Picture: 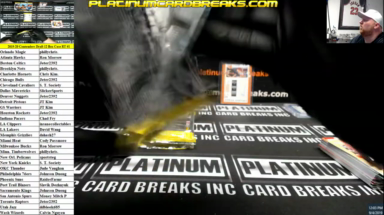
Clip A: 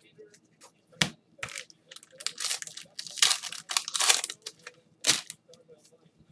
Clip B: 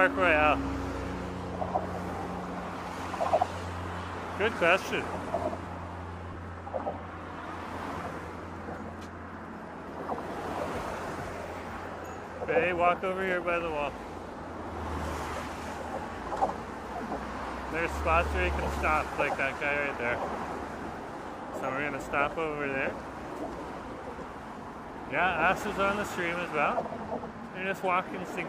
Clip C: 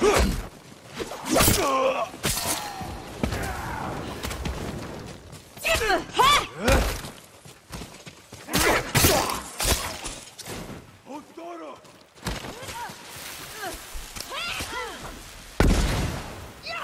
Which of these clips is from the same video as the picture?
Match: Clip A